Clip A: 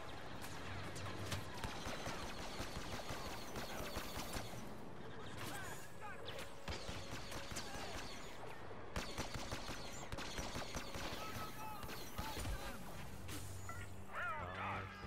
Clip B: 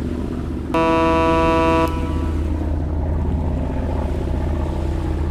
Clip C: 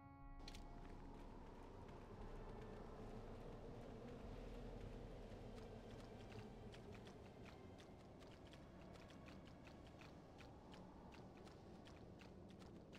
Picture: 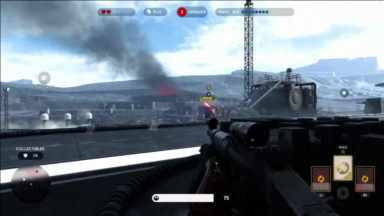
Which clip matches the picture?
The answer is A